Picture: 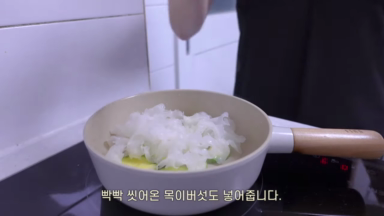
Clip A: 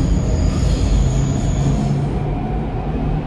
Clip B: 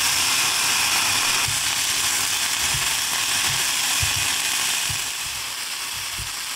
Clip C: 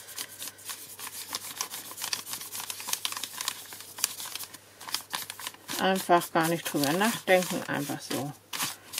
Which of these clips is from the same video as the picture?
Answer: B